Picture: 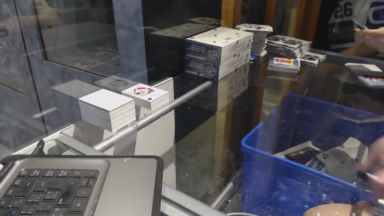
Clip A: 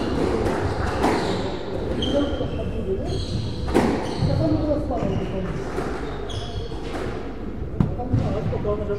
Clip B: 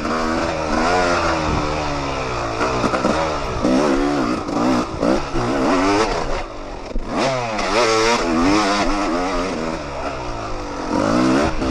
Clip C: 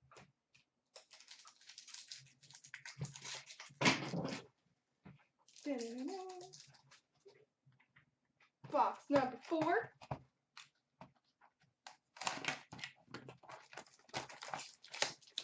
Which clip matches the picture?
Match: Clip C